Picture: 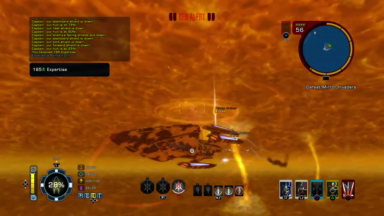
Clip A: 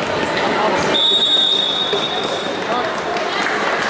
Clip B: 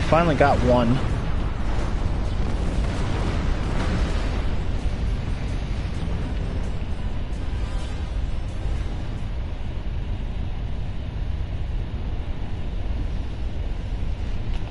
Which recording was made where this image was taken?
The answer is B